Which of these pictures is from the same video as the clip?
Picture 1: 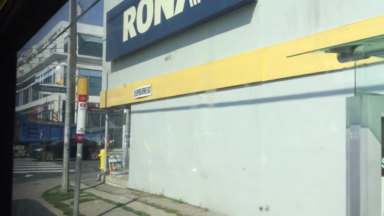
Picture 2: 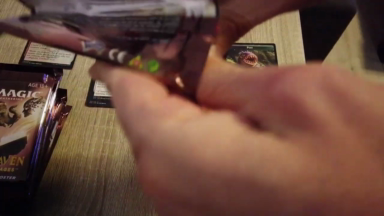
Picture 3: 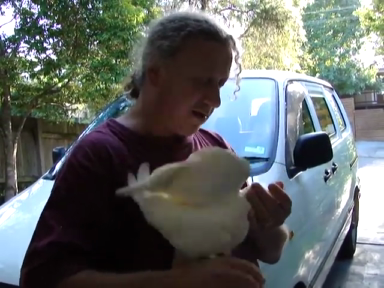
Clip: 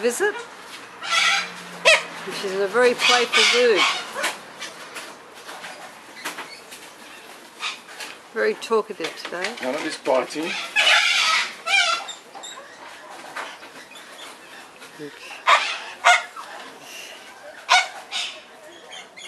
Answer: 3